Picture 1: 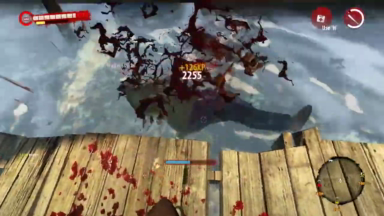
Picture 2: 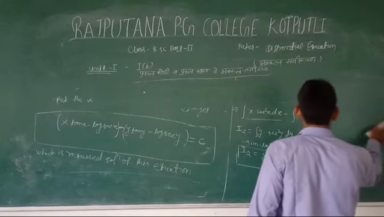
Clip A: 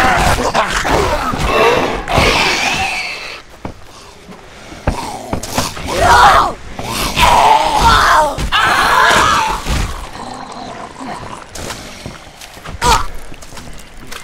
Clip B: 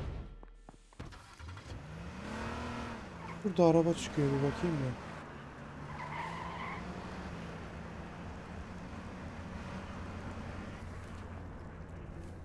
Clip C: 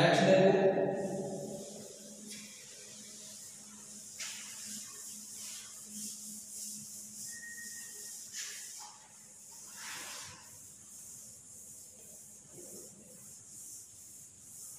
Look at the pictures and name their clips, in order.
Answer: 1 A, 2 C